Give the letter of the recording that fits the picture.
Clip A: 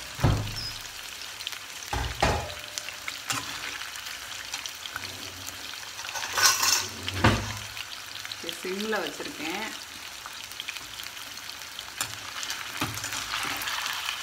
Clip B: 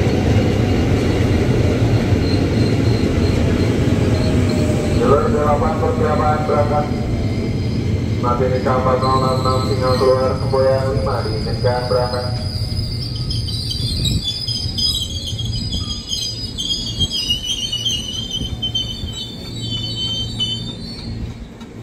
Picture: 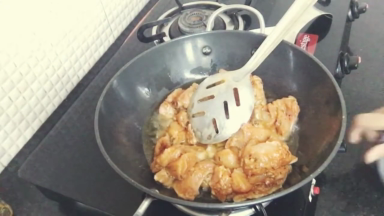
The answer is A